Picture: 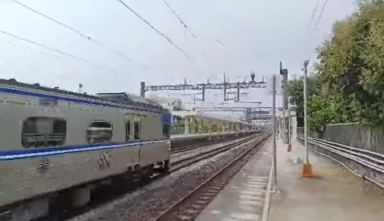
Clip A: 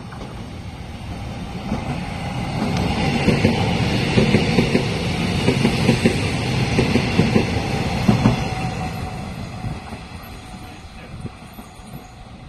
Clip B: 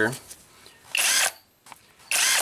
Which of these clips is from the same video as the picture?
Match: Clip A